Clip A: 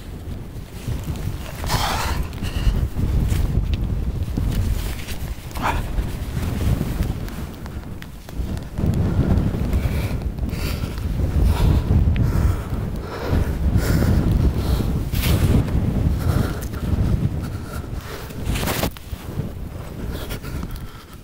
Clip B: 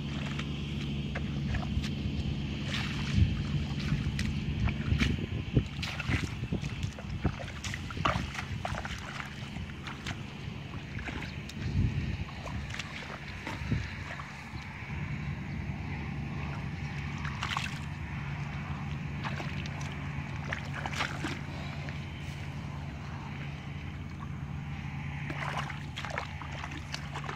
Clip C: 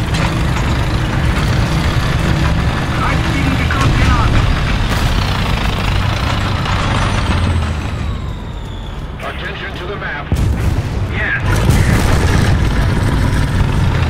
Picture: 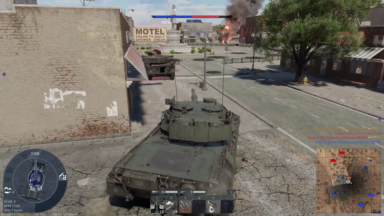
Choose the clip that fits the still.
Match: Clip C